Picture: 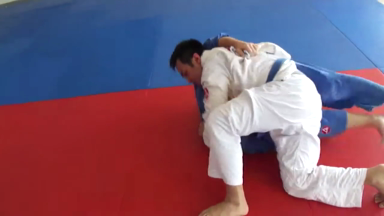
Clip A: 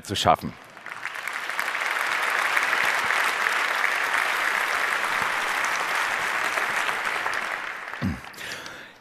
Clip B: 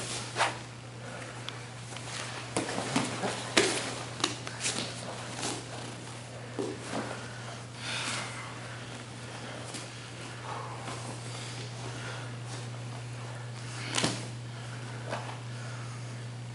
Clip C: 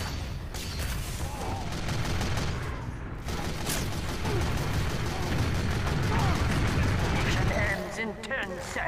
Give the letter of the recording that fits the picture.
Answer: B